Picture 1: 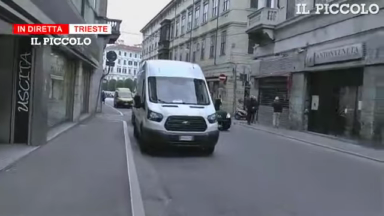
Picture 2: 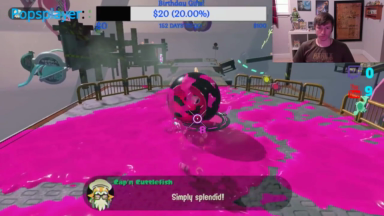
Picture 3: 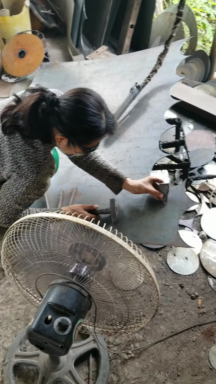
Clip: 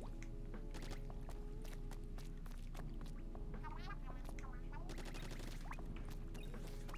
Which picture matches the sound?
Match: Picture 2